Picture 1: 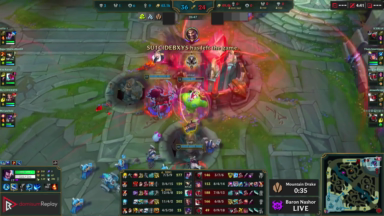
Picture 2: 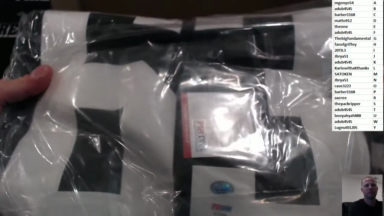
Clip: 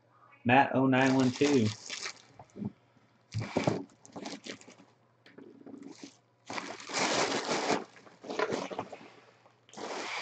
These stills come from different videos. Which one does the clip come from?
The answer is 2